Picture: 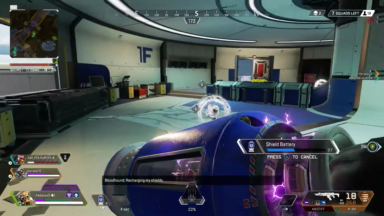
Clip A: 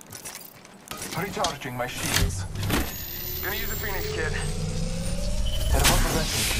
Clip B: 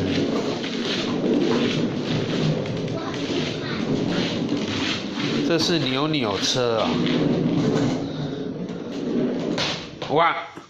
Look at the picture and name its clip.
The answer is A